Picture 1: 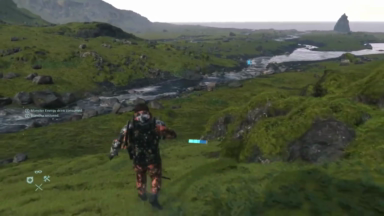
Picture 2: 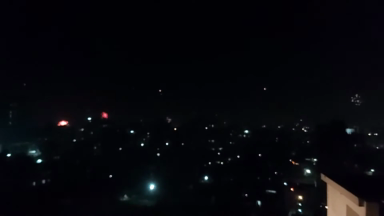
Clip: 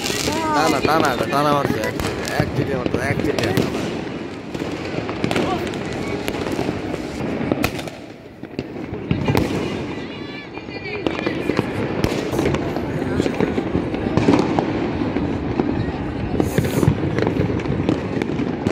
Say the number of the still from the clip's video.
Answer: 2